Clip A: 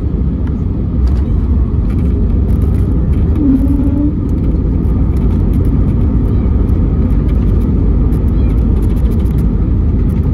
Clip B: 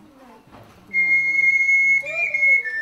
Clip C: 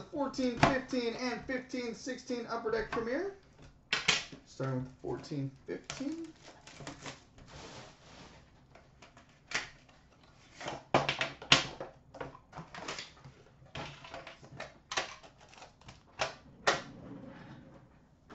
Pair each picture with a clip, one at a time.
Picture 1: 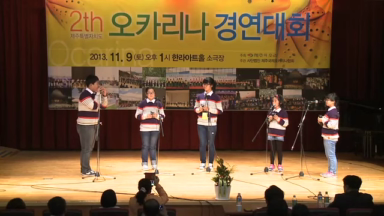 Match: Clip B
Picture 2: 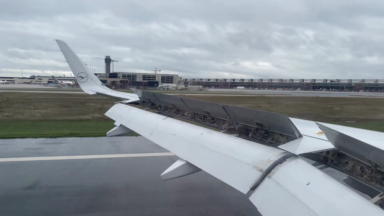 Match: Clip A